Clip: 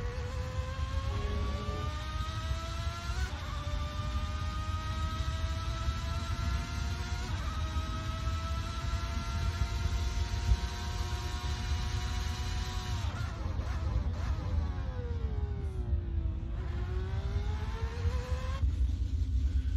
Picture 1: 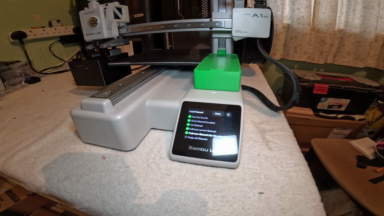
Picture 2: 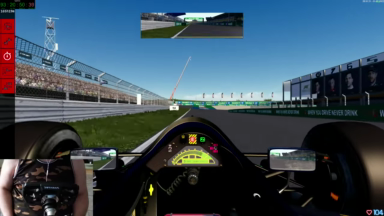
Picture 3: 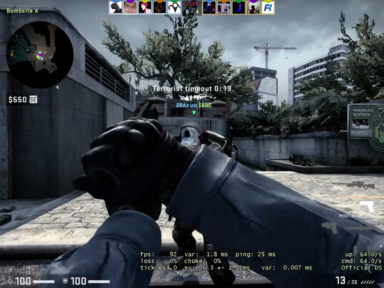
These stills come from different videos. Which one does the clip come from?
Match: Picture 2